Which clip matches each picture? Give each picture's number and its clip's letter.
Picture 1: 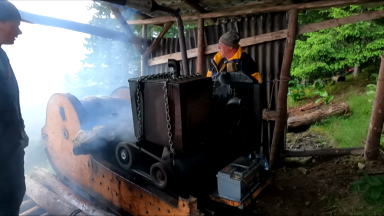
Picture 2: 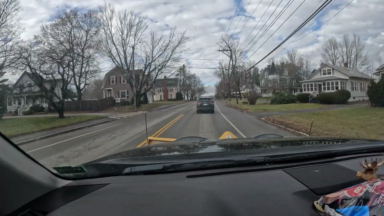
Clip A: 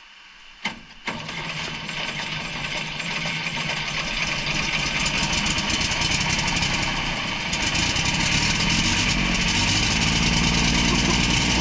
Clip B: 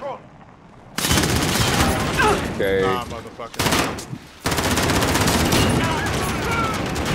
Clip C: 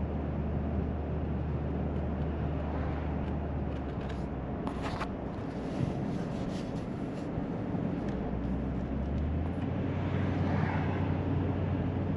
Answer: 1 A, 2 C